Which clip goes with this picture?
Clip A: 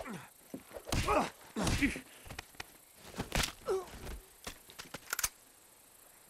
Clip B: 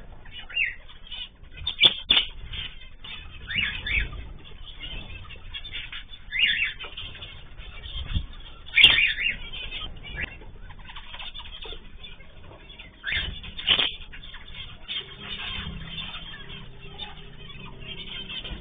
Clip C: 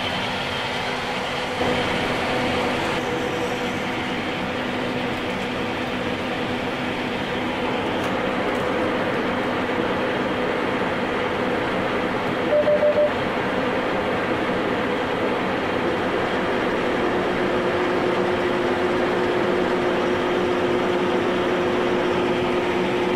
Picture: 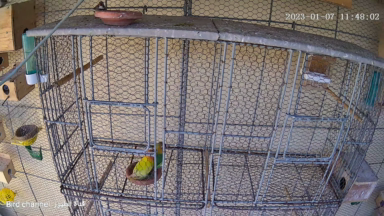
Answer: B